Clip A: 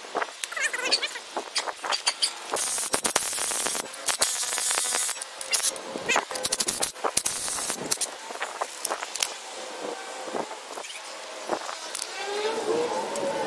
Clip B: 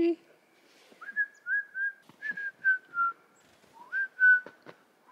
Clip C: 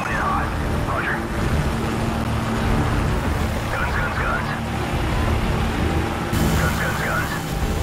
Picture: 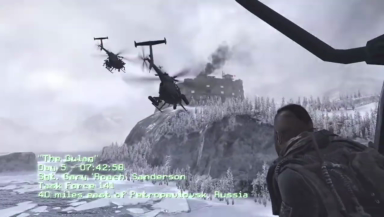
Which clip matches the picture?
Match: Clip C